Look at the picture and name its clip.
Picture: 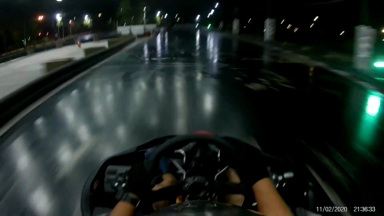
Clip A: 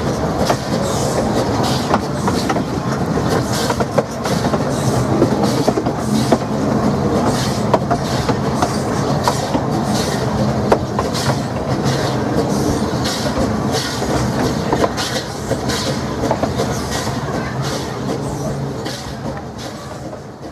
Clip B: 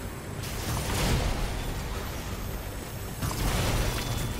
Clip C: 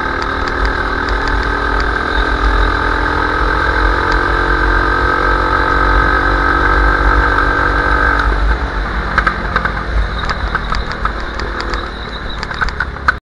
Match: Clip C